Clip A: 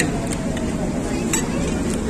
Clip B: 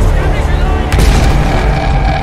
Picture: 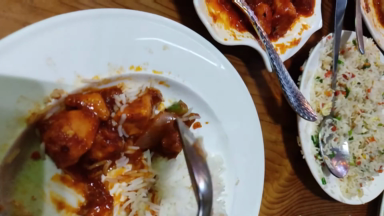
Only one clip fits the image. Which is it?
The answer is A